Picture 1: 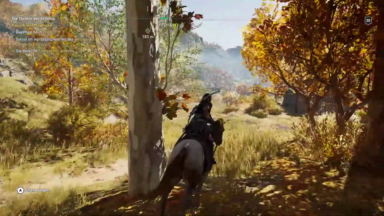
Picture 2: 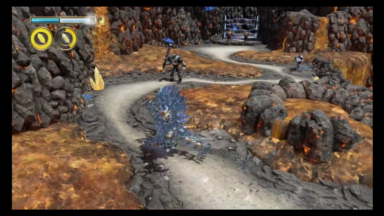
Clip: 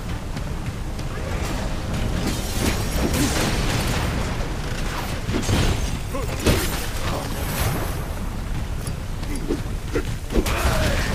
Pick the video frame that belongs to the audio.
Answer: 2